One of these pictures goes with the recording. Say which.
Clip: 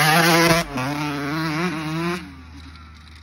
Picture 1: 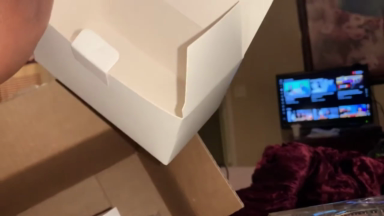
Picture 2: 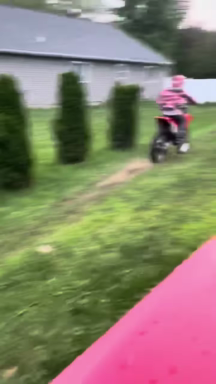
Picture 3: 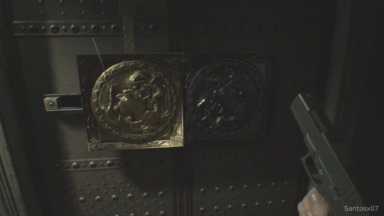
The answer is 2